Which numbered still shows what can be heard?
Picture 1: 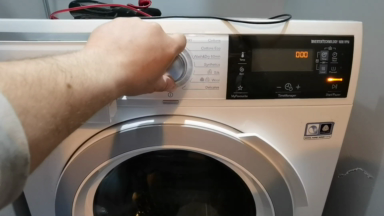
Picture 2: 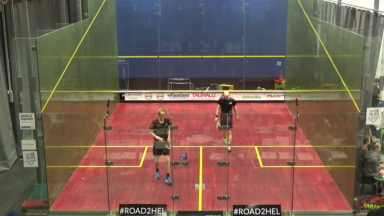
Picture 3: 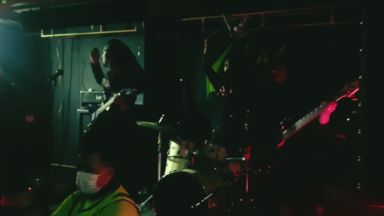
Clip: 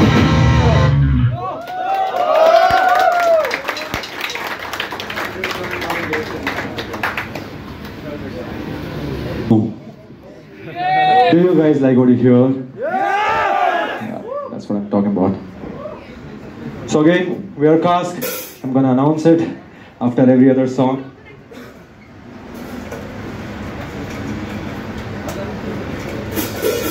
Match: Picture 3